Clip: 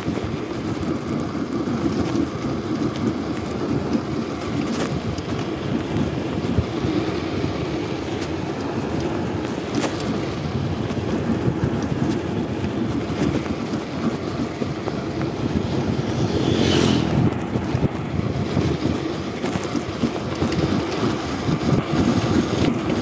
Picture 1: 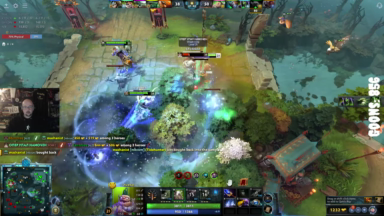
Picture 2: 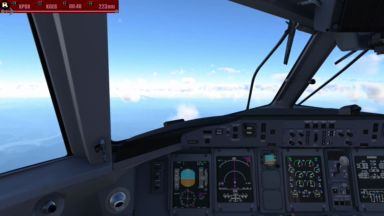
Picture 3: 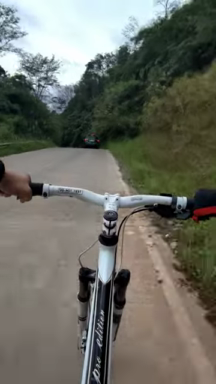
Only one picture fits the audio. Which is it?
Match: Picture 3